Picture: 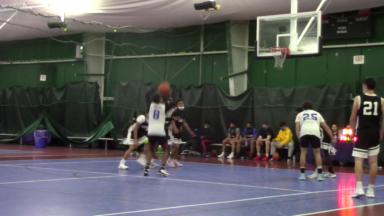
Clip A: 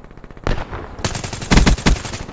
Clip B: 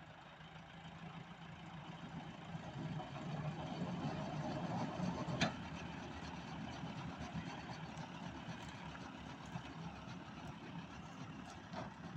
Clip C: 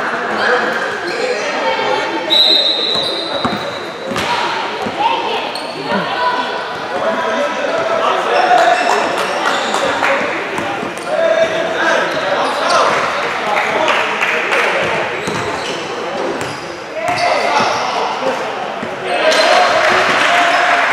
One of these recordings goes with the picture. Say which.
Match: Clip C